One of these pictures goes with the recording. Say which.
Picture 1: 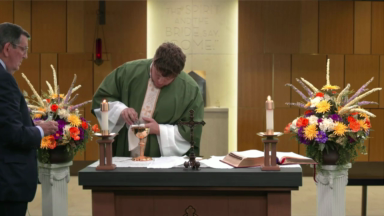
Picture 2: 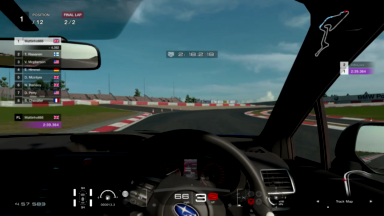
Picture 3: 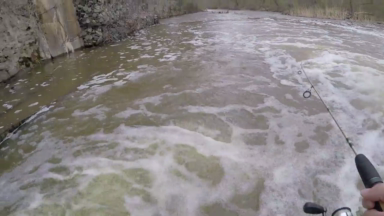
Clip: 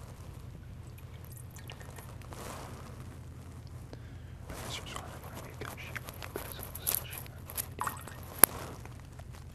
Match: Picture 1